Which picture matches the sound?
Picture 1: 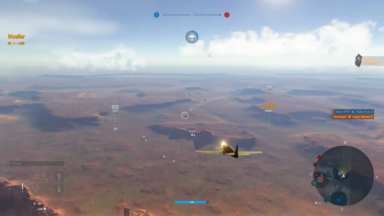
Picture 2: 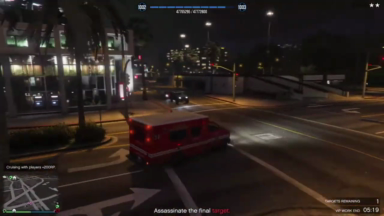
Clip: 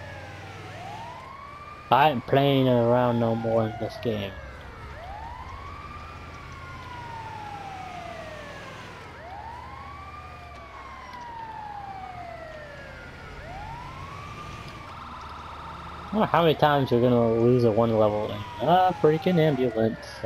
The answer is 2